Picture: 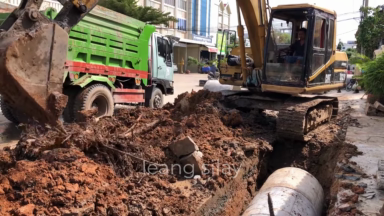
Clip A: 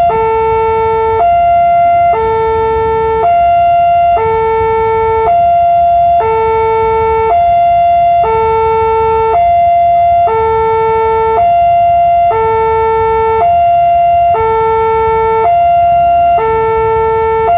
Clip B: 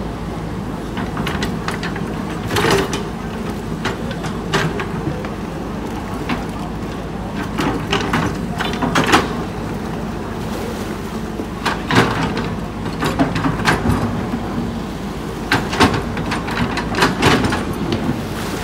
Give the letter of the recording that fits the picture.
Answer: B